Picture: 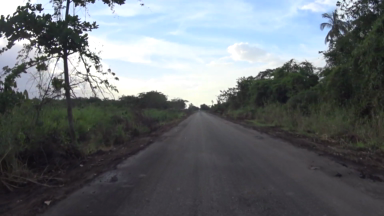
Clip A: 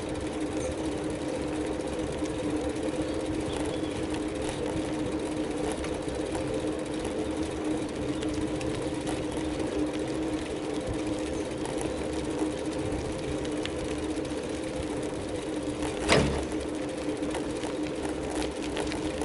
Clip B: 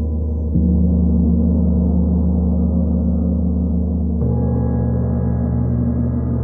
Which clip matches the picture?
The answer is A